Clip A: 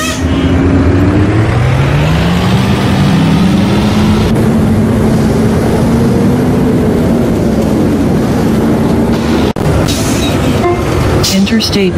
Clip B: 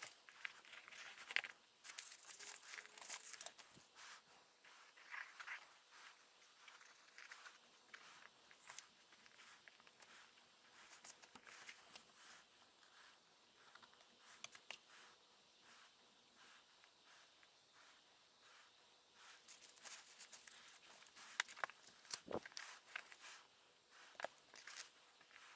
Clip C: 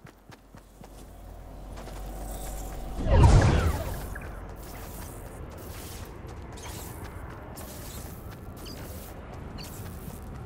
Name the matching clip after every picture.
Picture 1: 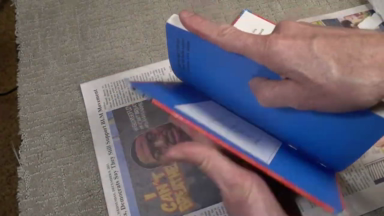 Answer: B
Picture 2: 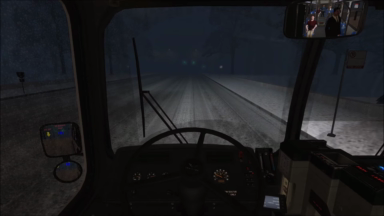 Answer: A